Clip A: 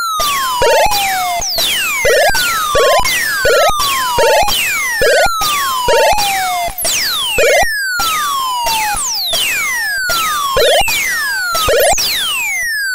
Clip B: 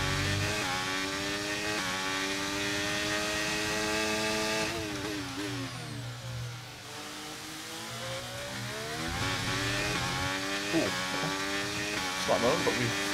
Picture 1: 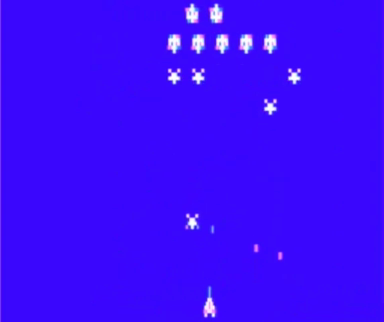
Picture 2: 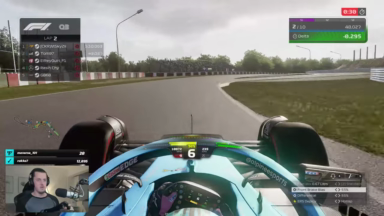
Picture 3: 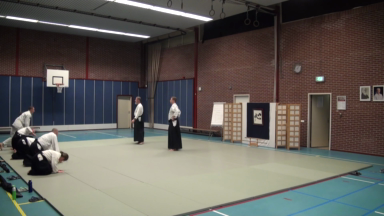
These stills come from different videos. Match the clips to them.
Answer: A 1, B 2